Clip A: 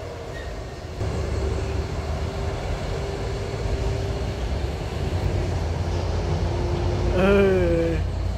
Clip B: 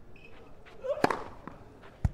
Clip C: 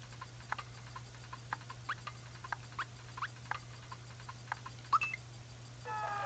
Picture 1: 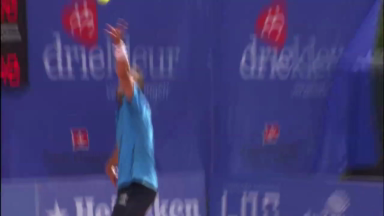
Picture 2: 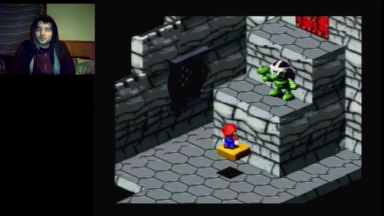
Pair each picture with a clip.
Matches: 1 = B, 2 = C